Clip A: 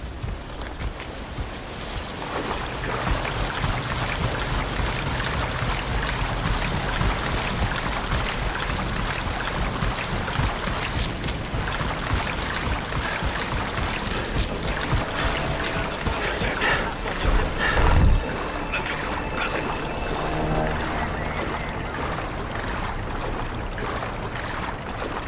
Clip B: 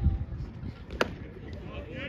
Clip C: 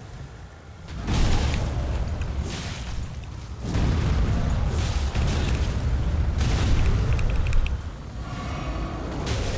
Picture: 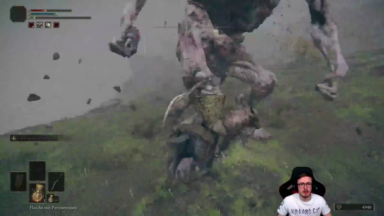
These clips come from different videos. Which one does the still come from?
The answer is C